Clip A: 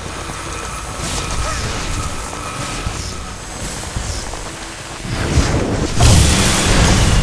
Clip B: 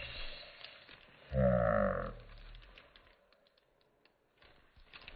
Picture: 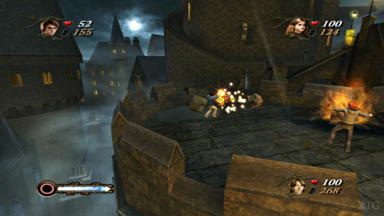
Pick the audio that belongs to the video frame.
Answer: A